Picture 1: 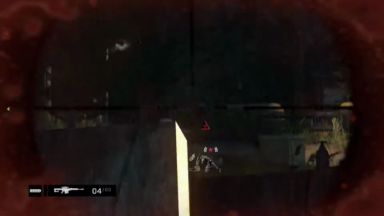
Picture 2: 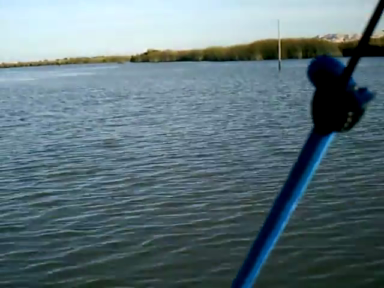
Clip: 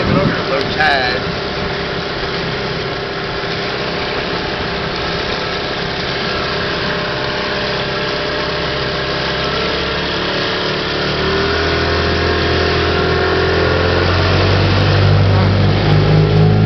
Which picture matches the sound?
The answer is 2